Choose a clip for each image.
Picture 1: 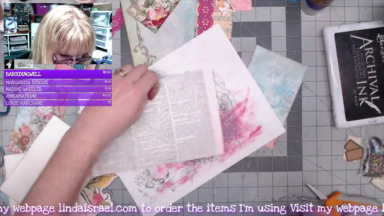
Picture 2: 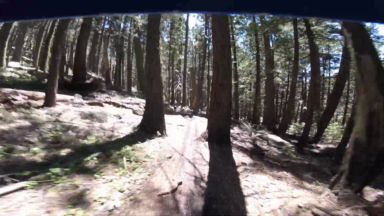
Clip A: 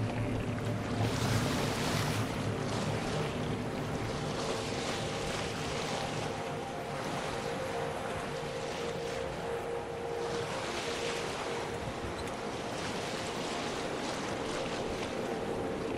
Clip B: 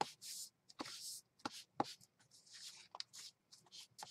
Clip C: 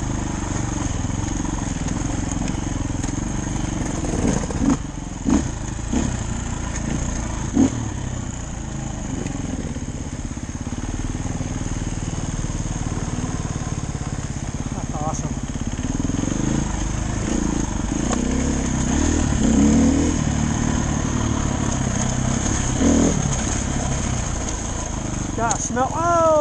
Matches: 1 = B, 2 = C